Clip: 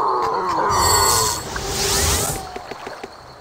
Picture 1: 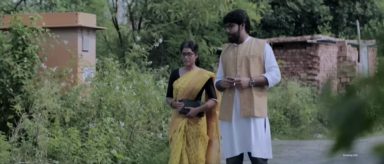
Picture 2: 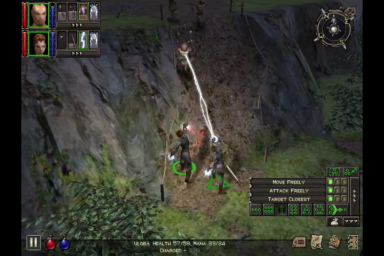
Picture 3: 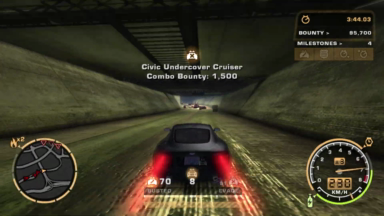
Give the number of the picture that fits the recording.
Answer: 2